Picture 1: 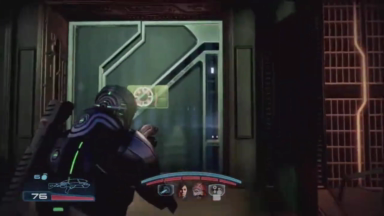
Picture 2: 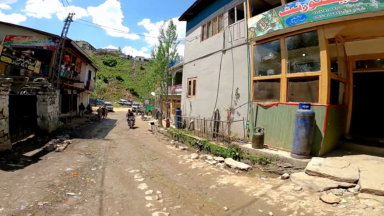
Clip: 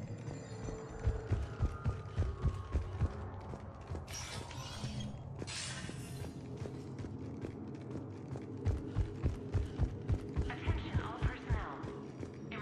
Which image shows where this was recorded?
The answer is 1